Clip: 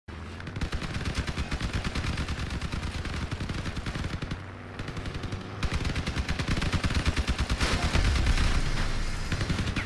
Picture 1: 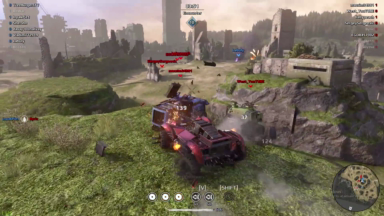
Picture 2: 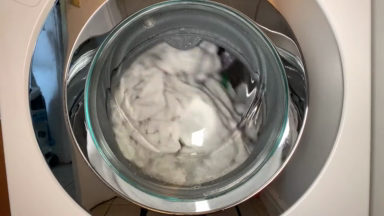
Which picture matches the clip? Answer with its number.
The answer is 1